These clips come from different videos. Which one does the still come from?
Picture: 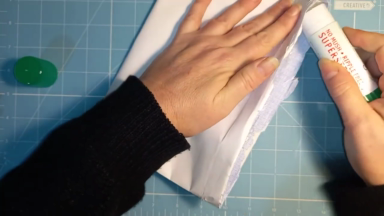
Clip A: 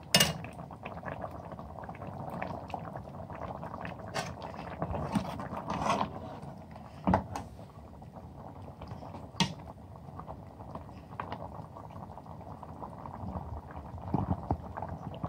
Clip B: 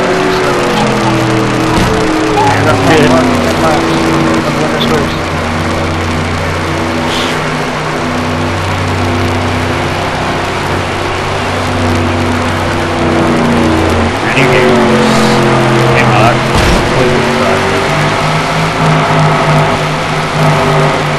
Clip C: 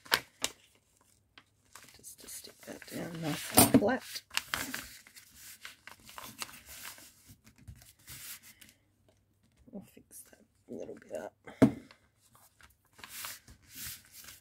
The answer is C